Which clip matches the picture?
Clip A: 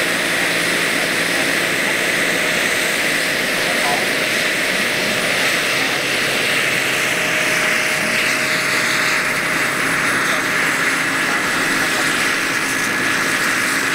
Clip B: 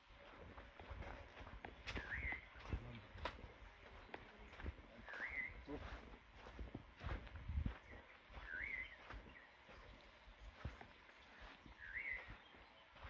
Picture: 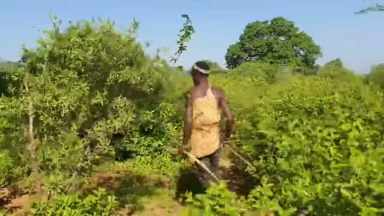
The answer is B